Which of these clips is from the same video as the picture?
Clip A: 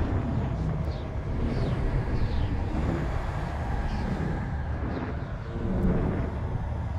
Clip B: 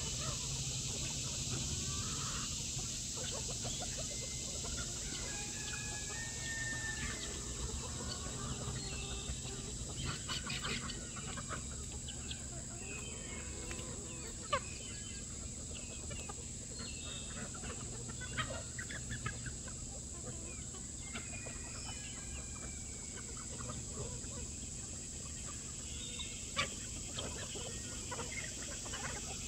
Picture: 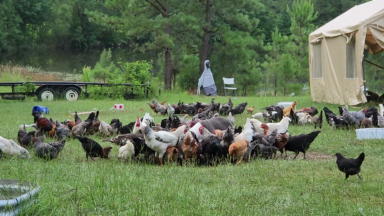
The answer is B